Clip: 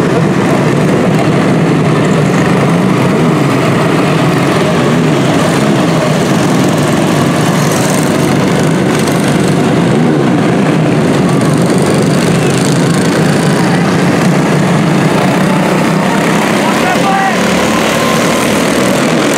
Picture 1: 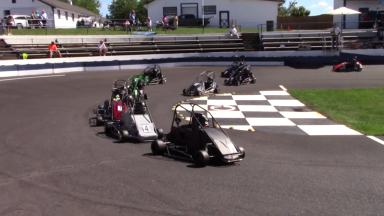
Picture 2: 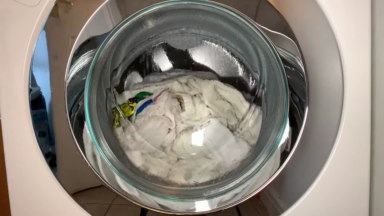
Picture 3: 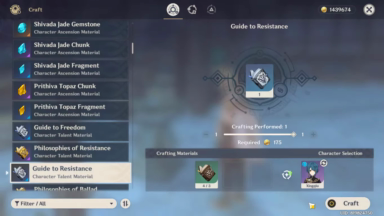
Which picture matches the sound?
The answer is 1